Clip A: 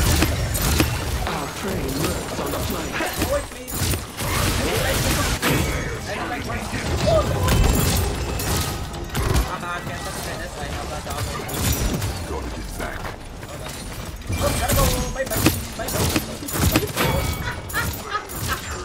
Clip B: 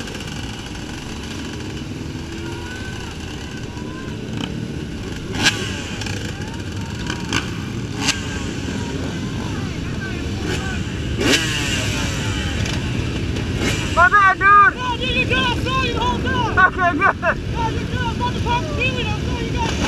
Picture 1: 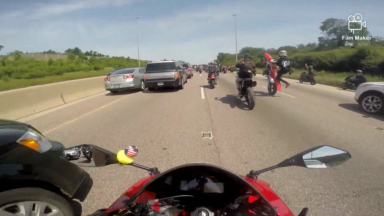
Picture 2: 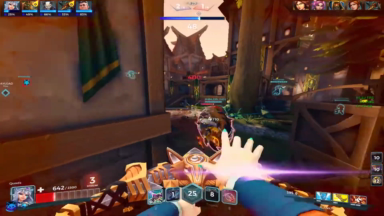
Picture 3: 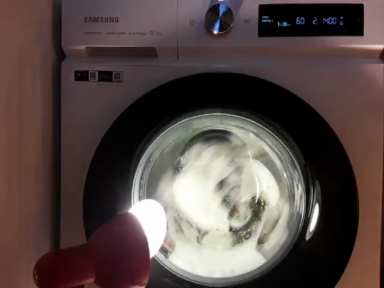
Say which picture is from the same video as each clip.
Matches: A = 2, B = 1